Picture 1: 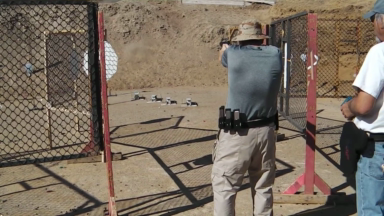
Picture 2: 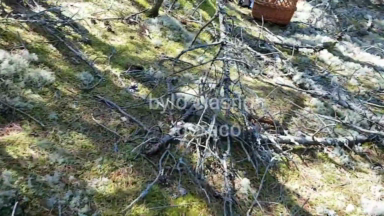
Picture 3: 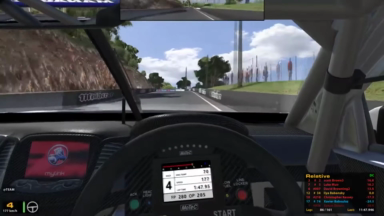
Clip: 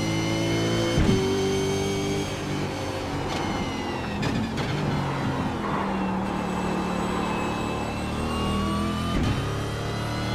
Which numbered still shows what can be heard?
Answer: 3